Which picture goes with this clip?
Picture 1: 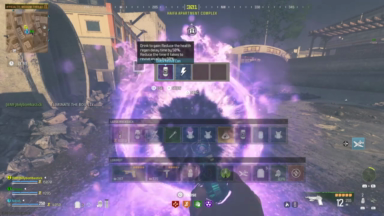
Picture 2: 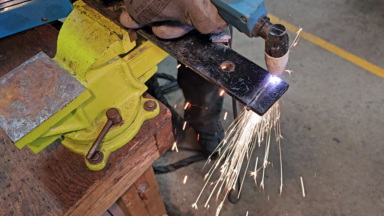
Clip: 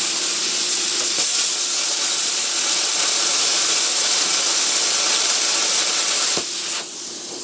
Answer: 2